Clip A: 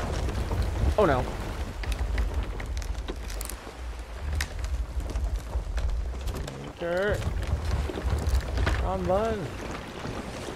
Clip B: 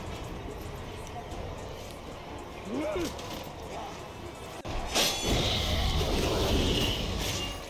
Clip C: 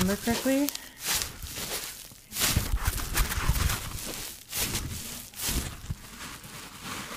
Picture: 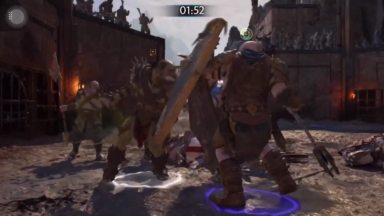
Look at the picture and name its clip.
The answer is B